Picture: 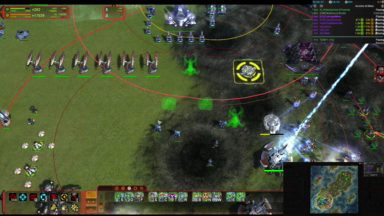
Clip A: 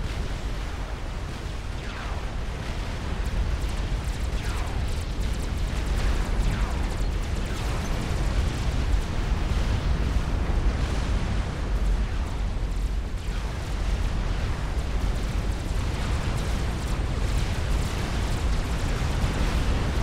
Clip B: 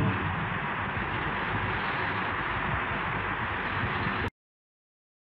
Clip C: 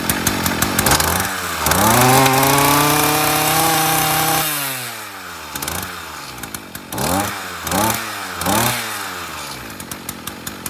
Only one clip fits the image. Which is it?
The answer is A